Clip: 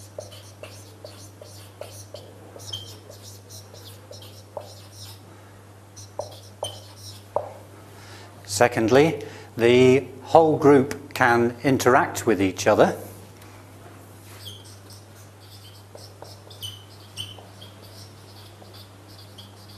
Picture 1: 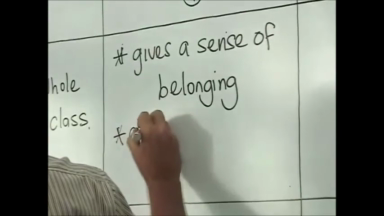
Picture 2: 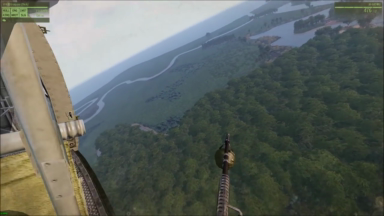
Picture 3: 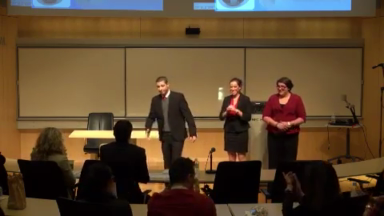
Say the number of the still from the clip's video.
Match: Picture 1